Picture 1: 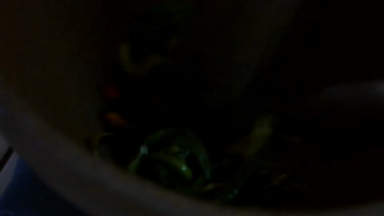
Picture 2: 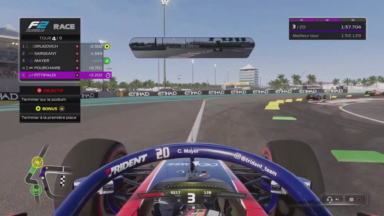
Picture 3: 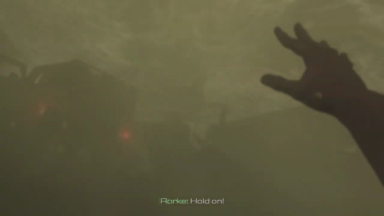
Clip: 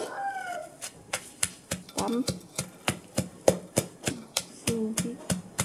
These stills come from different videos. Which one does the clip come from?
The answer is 1